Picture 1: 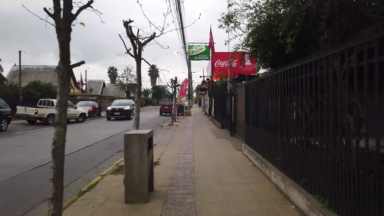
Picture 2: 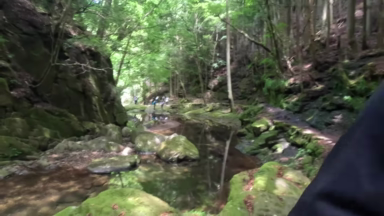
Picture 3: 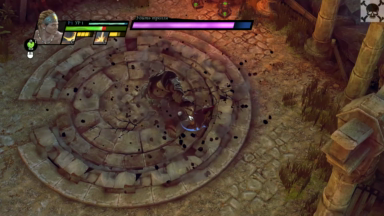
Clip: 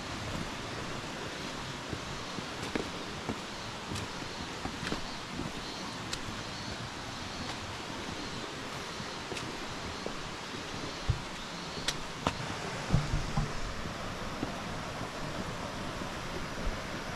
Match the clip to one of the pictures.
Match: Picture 2